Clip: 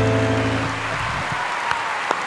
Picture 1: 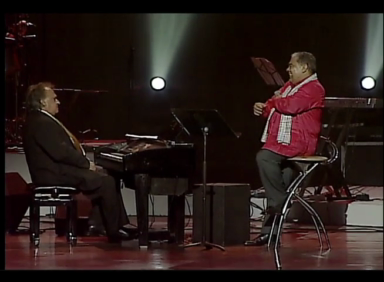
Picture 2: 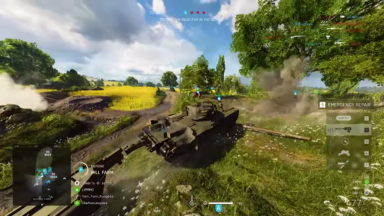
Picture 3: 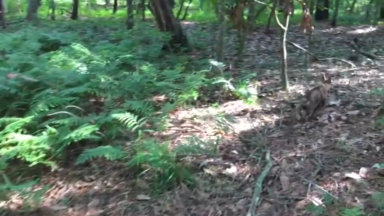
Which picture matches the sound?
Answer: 1